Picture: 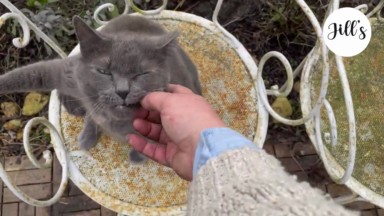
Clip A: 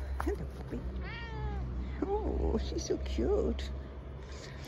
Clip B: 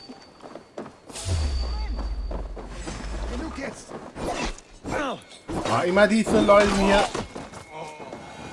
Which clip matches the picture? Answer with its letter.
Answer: A